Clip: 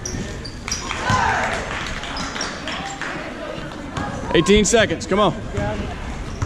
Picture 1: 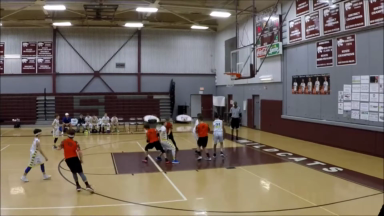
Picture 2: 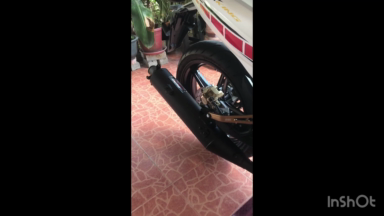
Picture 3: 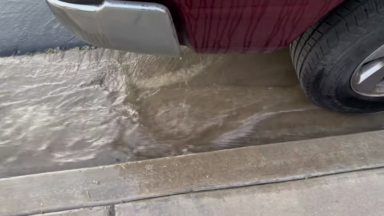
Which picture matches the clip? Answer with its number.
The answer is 1